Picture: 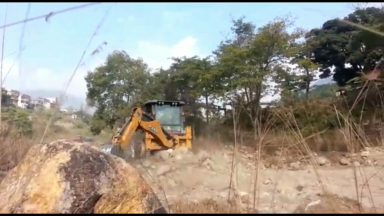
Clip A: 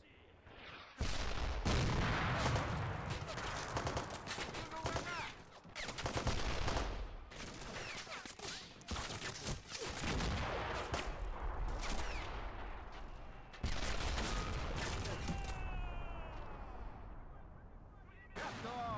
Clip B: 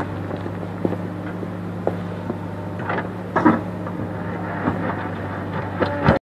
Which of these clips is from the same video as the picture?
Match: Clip B